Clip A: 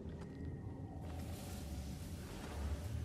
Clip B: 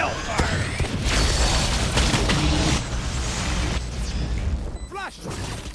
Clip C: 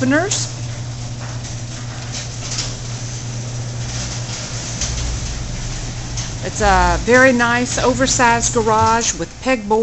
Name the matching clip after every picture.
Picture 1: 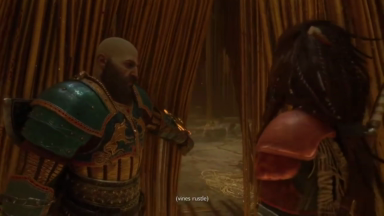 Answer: A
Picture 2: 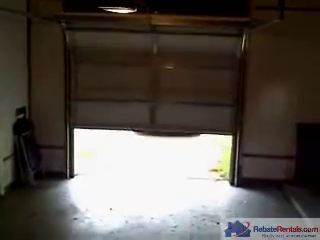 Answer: C